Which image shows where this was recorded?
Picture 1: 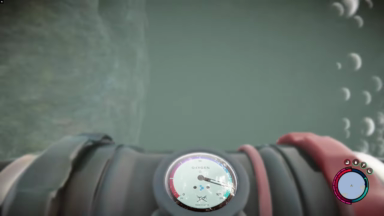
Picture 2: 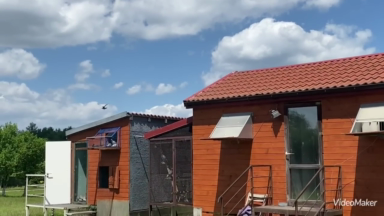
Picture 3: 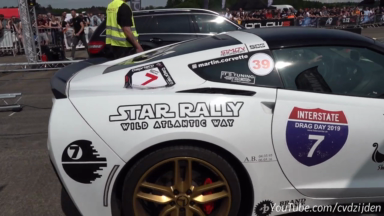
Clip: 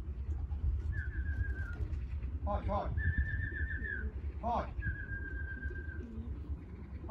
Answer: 2